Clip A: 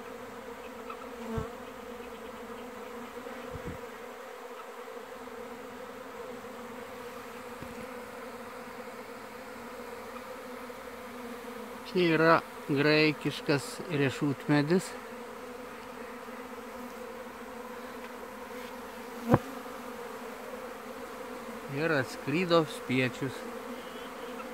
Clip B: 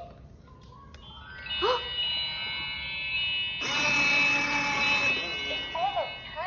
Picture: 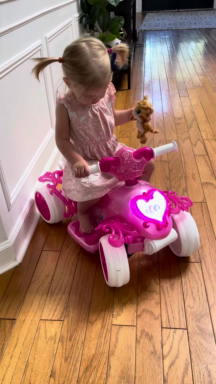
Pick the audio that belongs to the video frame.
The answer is B